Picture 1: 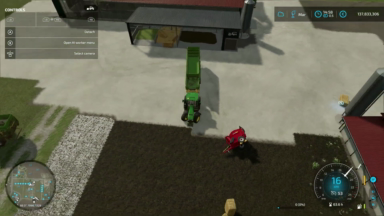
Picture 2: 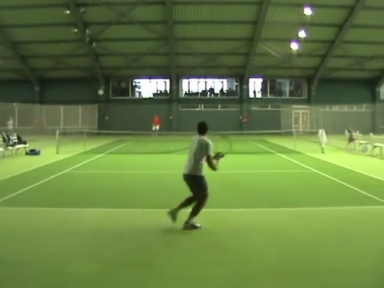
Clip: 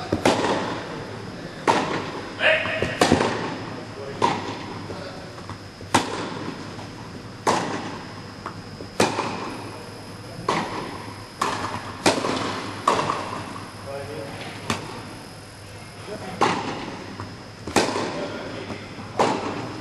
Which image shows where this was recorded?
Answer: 2